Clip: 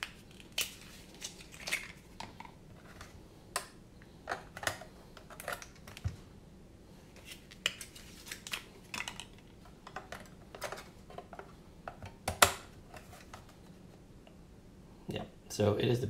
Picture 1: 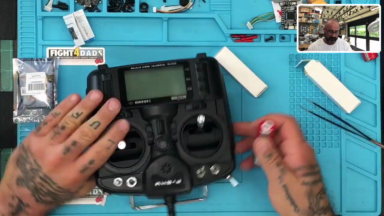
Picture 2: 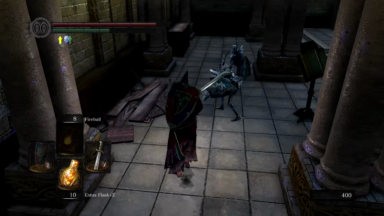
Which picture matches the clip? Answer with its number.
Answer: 1